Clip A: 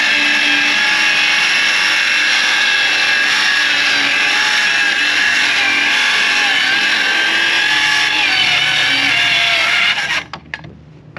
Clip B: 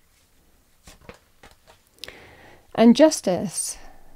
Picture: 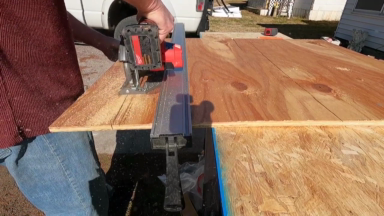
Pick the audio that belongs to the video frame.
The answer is A